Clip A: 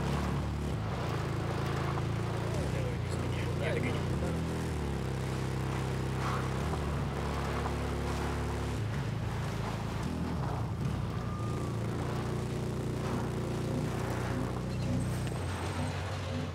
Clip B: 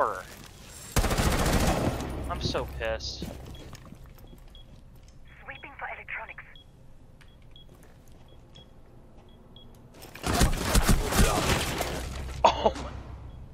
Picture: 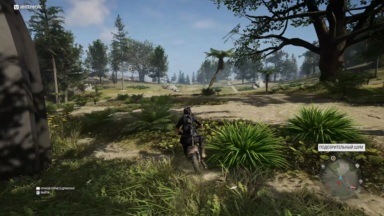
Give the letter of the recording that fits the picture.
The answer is A